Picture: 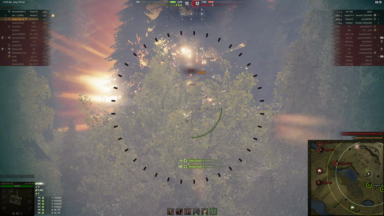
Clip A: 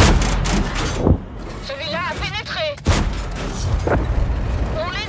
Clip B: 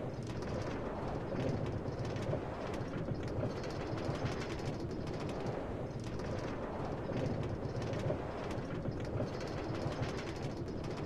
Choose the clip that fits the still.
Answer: A